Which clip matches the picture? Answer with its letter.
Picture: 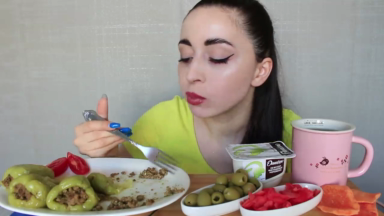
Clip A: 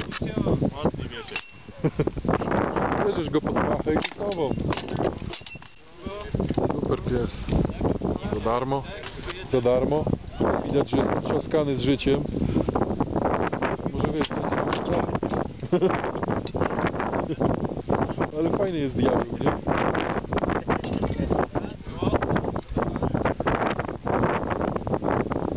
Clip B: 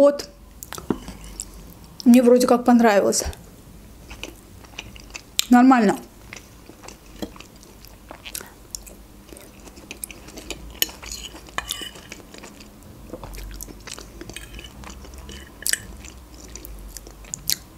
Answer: B